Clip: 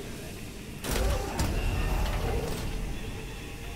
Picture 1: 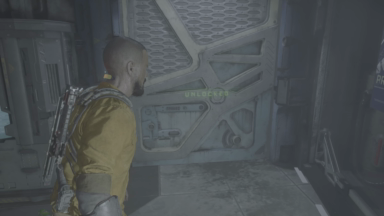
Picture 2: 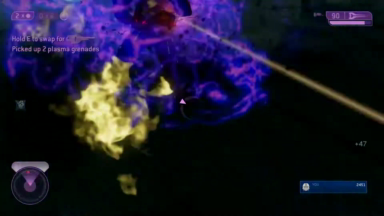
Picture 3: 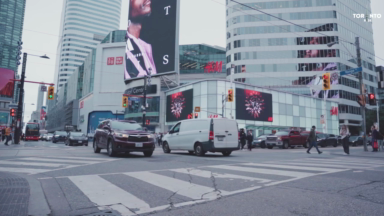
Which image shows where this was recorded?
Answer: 1